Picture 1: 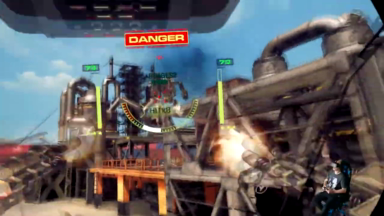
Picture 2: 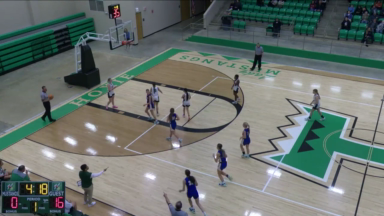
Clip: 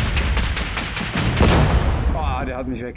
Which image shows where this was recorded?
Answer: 1